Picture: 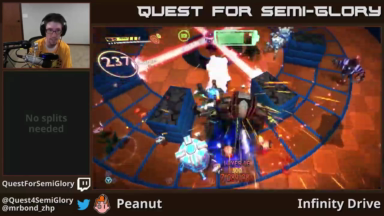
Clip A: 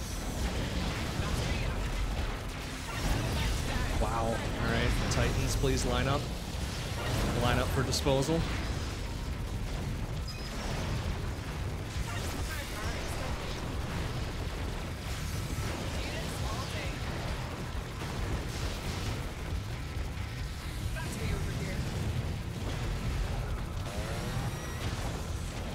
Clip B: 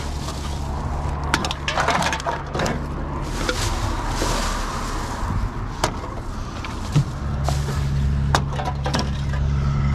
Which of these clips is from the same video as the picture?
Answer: A